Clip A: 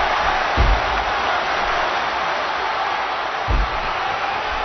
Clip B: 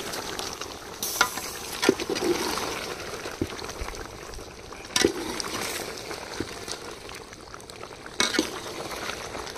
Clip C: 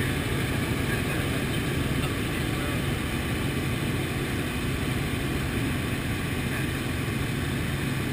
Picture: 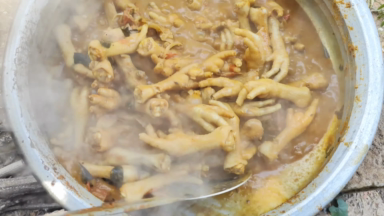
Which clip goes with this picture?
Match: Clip B